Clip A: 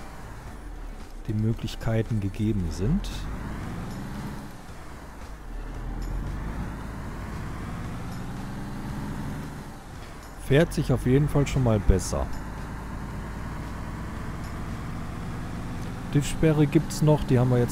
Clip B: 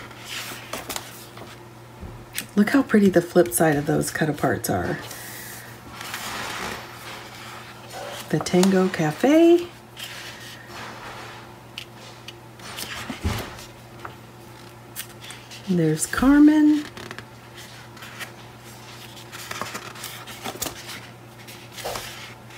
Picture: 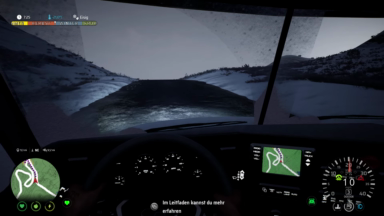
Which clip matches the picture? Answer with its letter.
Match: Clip A